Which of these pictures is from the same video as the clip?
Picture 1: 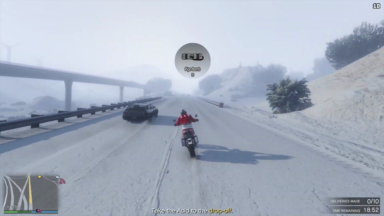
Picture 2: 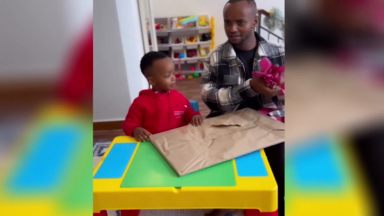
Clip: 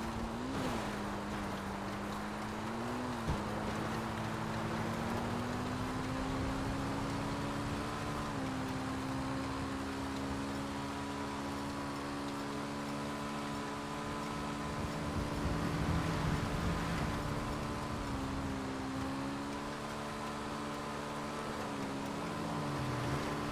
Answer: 1